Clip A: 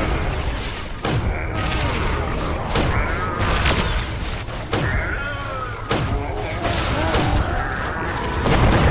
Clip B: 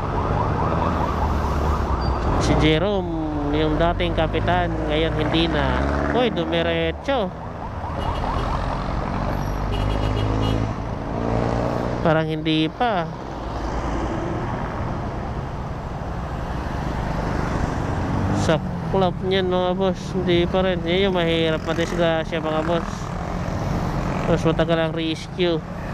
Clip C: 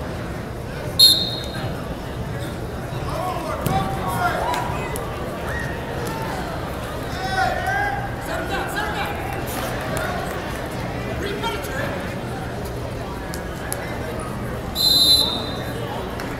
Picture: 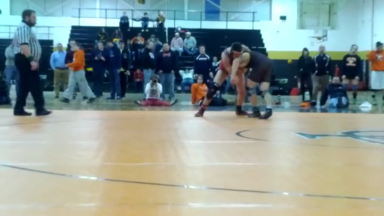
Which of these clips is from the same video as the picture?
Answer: C